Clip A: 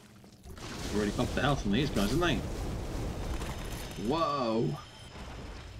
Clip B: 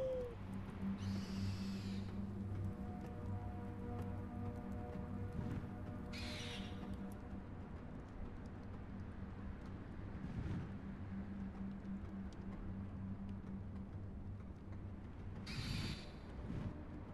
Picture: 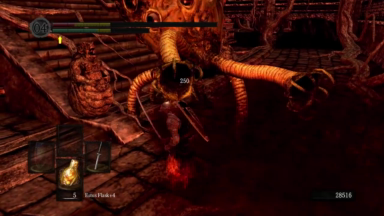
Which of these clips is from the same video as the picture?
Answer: A